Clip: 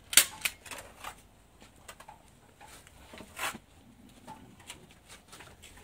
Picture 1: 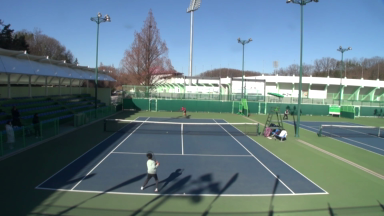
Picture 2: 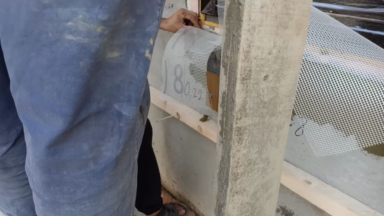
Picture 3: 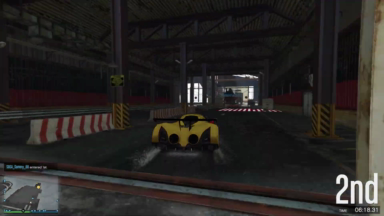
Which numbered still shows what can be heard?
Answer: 2